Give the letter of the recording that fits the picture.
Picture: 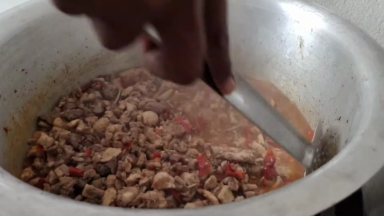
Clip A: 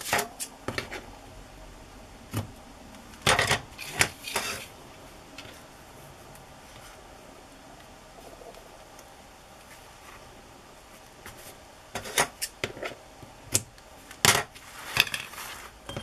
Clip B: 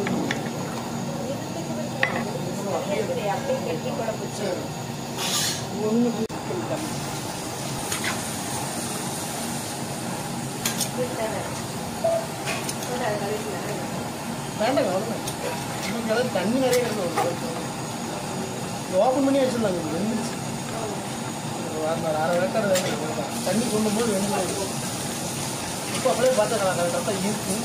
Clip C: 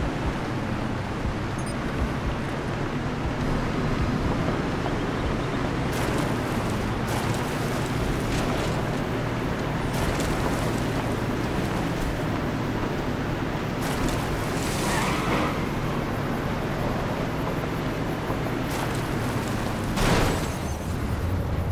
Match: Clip B